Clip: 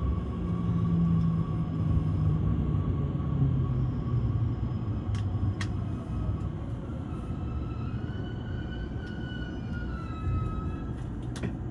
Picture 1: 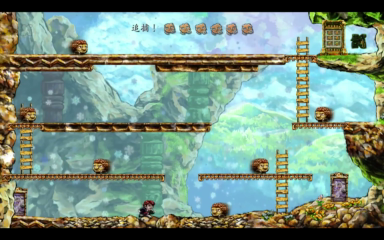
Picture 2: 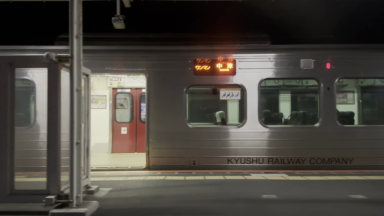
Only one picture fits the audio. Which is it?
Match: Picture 2